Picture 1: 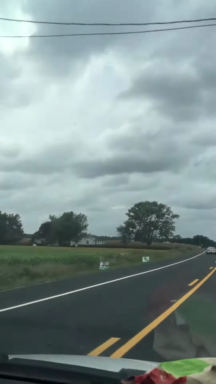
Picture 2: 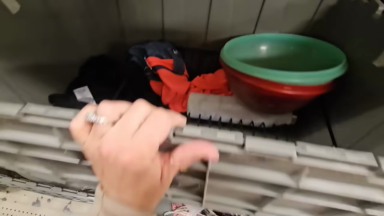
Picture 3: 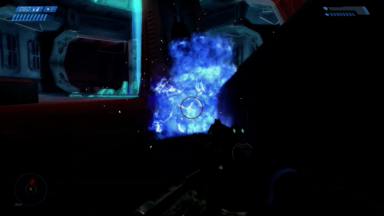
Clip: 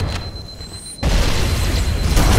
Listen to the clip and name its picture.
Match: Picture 3